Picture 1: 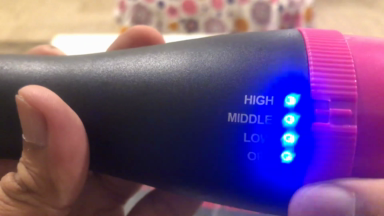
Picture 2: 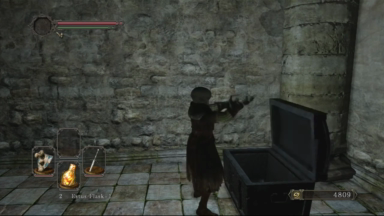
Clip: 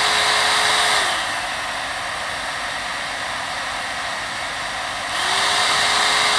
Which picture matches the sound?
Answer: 1